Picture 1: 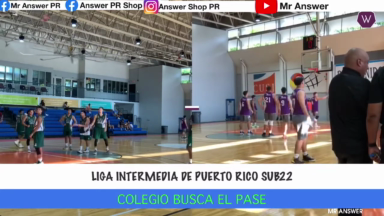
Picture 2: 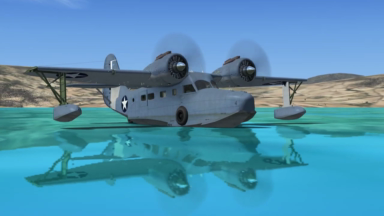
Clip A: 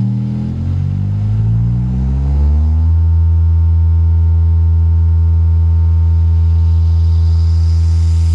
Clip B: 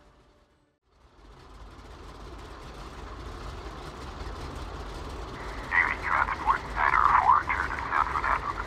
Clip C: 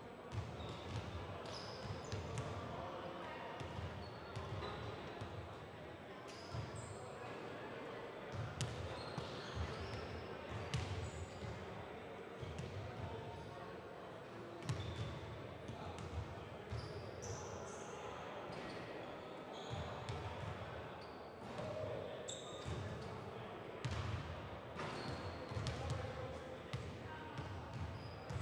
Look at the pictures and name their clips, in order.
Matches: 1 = C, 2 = B